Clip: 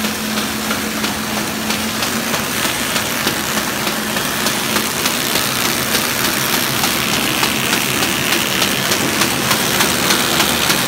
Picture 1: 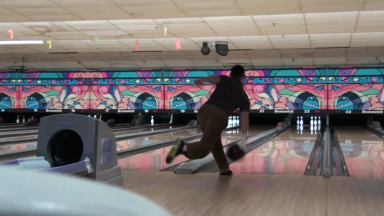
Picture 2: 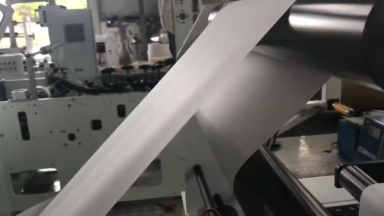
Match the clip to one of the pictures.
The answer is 2